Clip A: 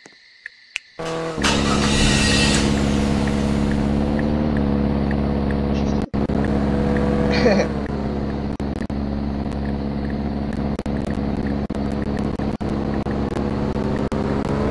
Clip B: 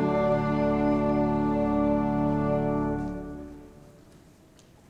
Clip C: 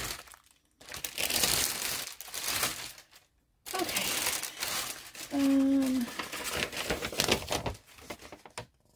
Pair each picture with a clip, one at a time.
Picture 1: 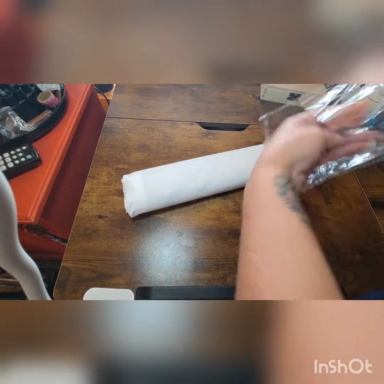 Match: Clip C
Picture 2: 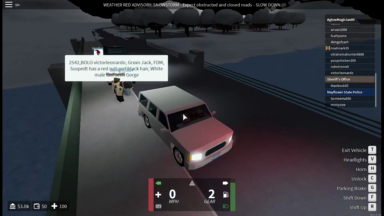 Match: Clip A